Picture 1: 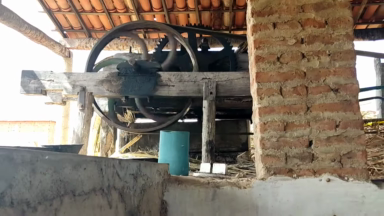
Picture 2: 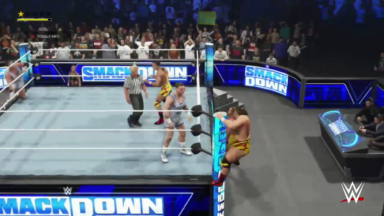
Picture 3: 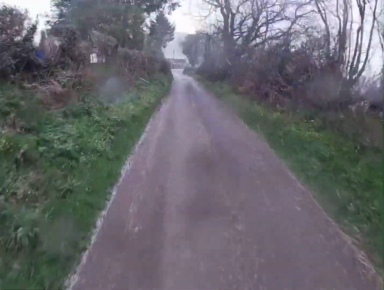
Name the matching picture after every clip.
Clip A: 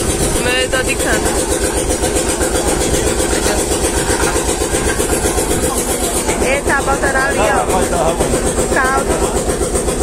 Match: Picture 1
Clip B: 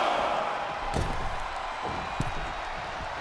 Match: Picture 2